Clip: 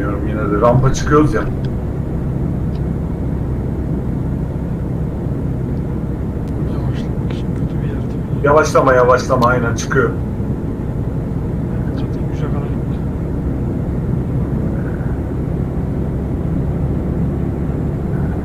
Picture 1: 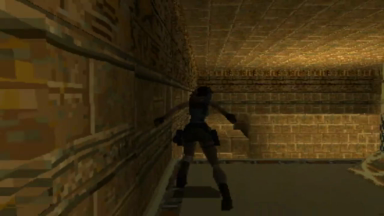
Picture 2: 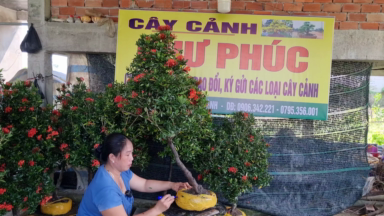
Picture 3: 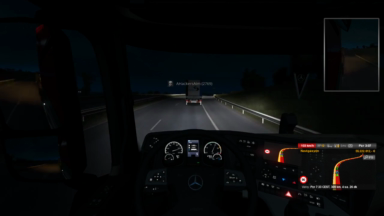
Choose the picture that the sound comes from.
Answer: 3